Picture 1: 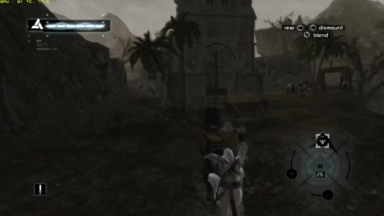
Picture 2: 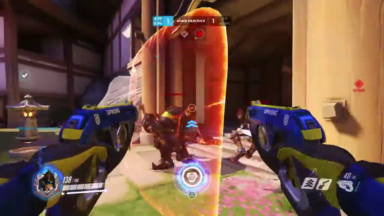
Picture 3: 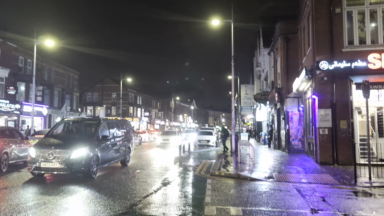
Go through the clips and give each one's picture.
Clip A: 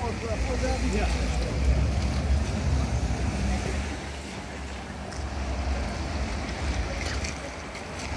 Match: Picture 3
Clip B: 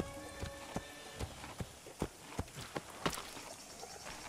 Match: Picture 1